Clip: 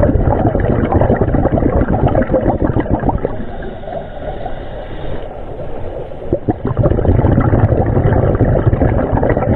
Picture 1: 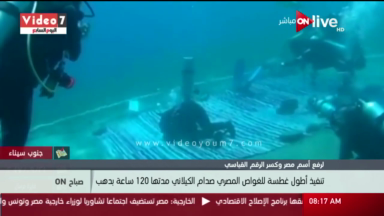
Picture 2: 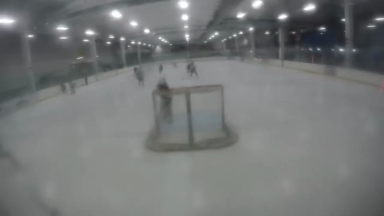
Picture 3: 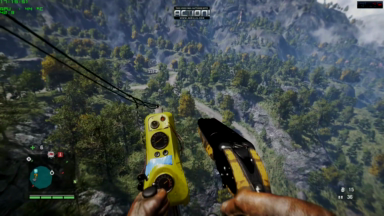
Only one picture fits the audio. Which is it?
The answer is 1